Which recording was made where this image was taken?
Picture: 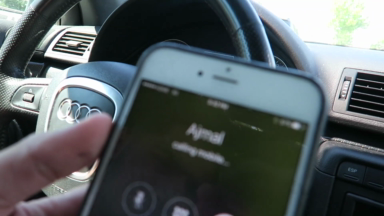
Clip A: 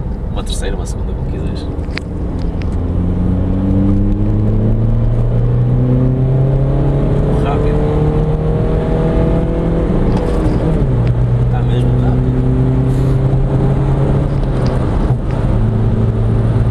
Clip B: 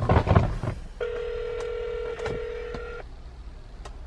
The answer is B